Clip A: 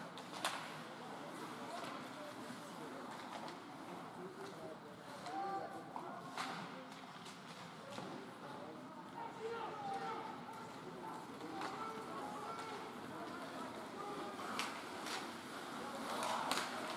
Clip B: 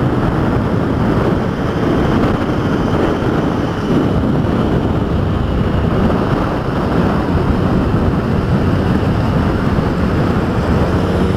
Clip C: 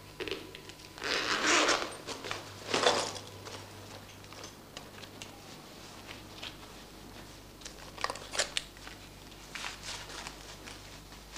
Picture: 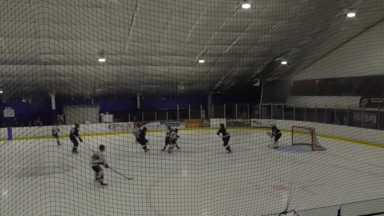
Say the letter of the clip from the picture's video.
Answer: A